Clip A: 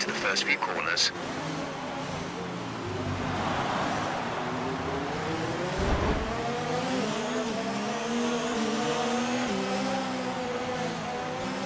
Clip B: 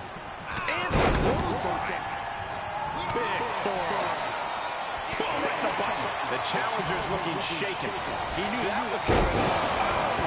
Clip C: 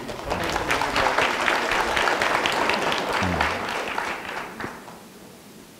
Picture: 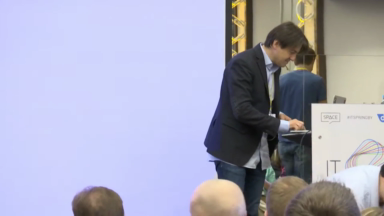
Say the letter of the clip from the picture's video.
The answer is C